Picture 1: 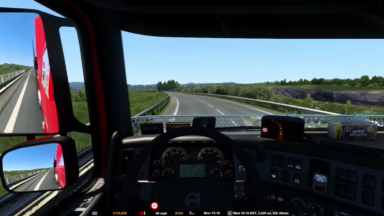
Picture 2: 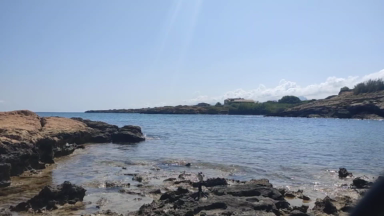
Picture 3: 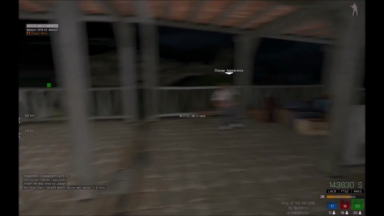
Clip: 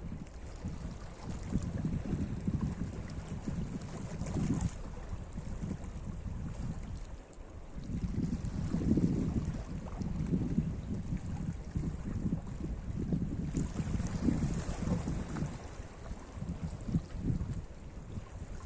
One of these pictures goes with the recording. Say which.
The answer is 2